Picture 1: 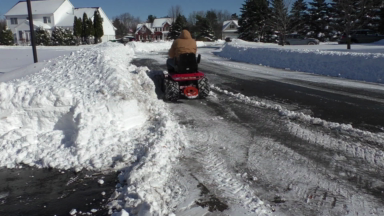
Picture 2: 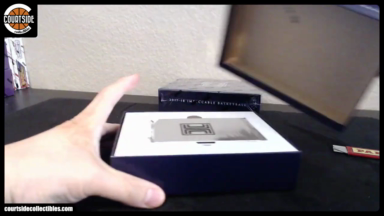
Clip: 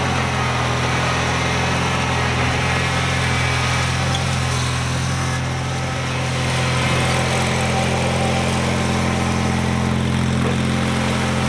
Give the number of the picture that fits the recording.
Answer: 1